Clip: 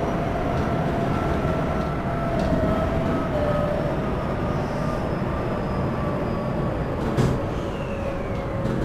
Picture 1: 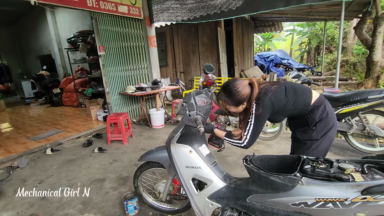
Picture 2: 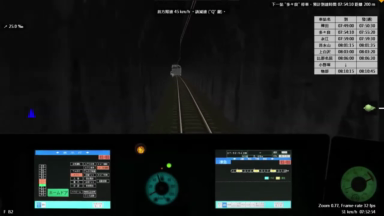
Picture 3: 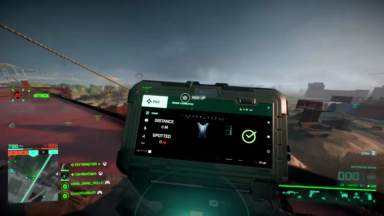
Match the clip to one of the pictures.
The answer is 2